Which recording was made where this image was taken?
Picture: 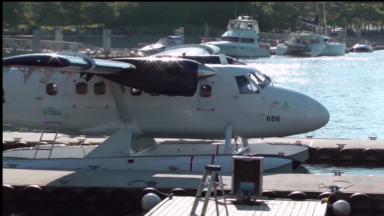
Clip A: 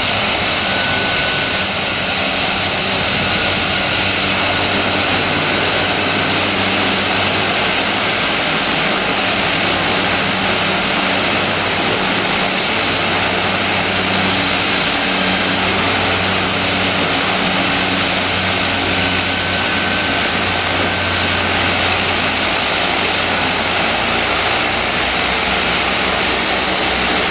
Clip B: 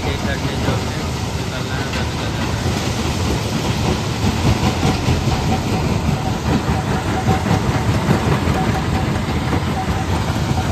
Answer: A